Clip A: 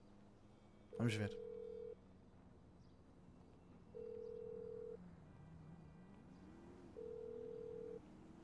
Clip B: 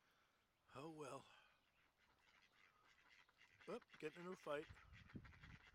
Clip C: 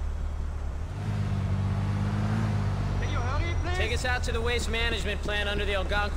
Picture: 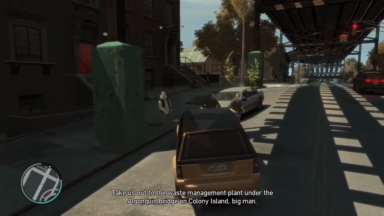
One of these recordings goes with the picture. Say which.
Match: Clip C